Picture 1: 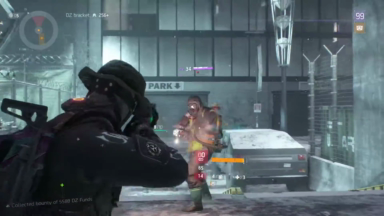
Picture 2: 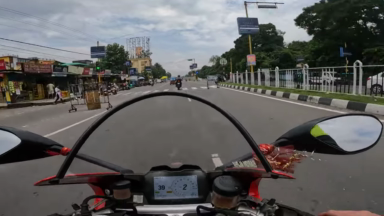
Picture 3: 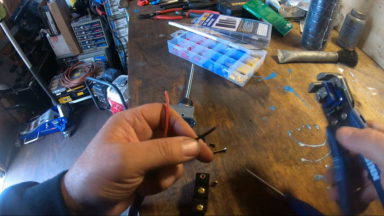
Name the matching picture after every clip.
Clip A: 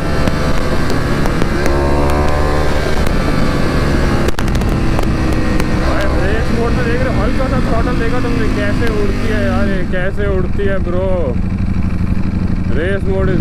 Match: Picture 2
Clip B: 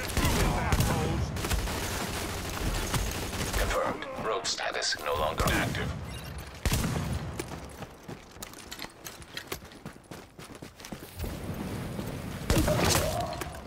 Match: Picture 1